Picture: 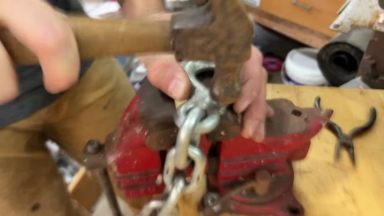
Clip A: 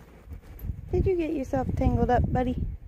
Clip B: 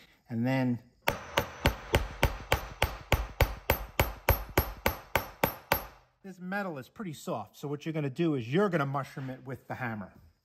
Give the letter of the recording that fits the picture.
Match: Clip B